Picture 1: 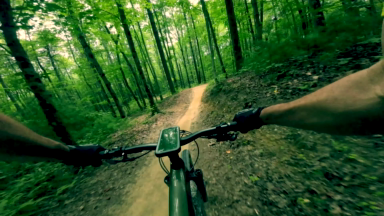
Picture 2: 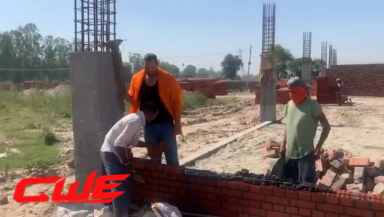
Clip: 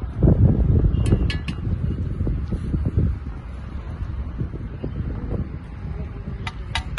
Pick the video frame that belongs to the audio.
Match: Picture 2